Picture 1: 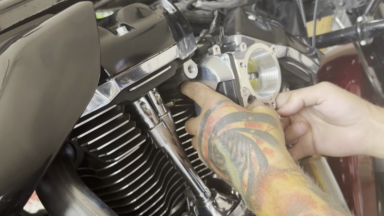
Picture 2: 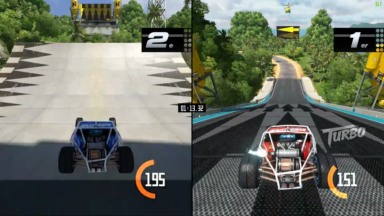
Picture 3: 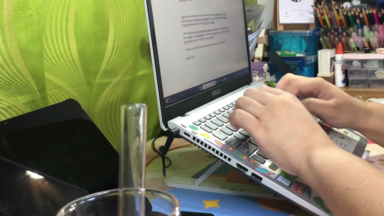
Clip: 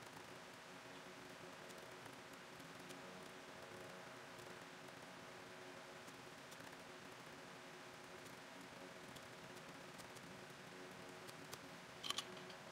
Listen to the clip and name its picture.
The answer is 3